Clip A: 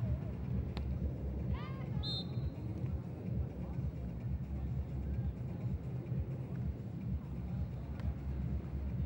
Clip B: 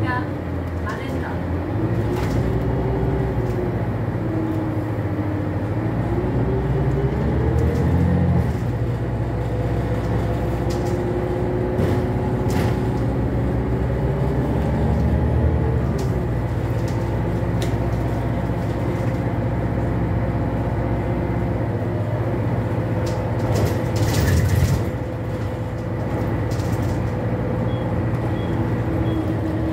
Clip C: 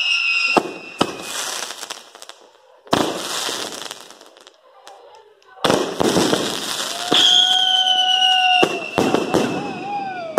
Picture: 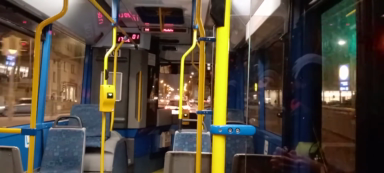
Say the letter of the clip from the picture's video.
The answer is B